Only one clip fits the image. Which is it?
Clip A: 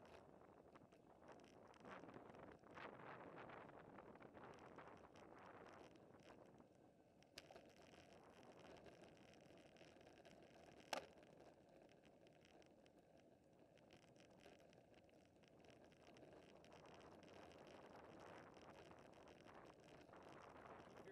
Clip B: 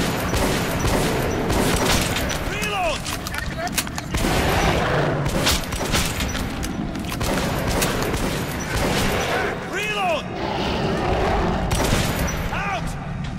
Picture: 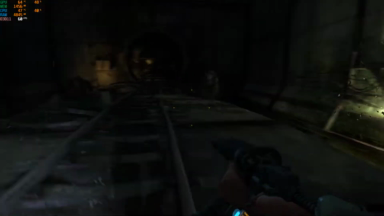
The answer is B